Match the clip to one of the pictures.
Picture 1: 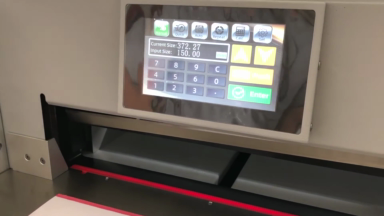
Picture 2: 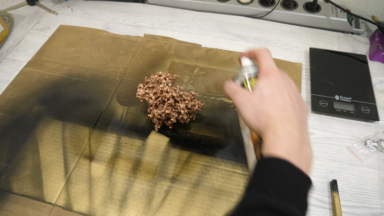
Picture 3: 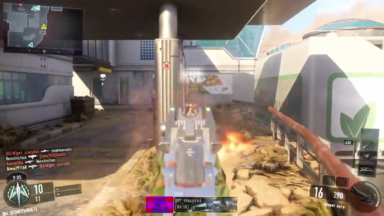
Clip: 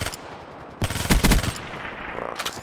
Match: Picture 3